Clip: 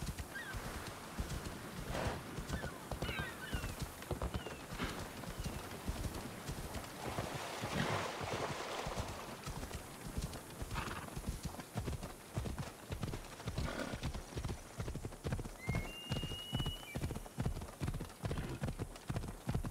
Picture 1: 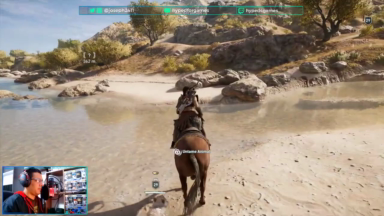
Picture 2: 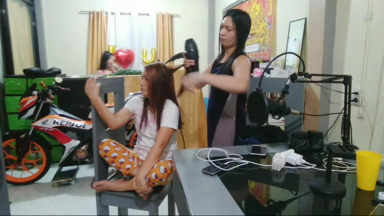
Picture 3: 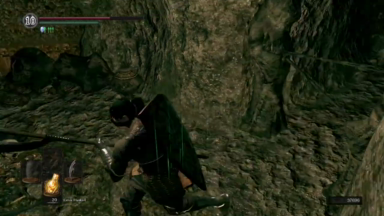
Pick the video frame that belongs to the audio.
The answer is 1